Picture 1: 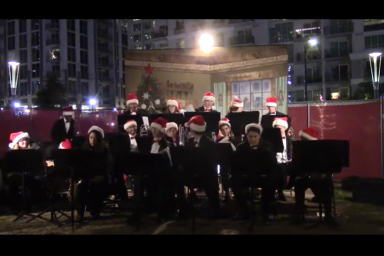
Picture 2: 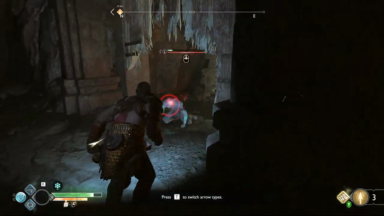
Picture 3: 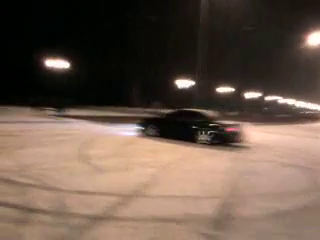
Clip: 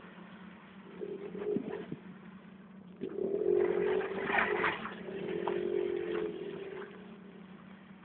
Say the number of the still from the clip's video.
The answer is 3